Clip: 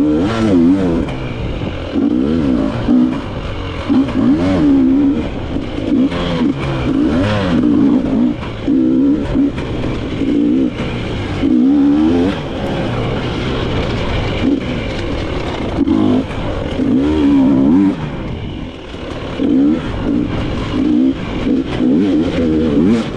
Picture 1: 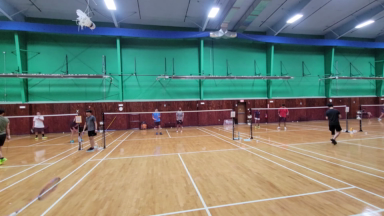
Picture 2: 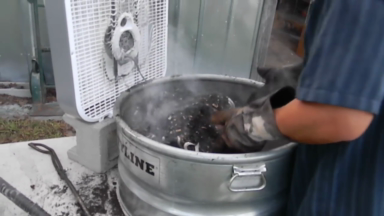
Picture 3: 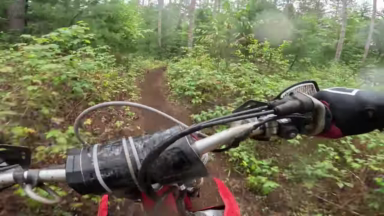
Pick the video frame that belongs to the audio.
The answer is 3